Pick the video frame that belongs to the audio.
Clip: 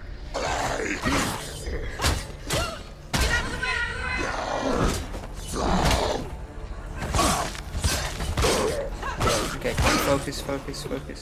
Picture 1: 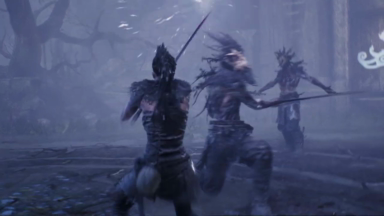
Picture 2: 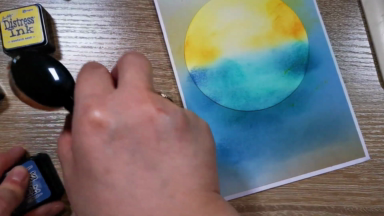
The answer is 1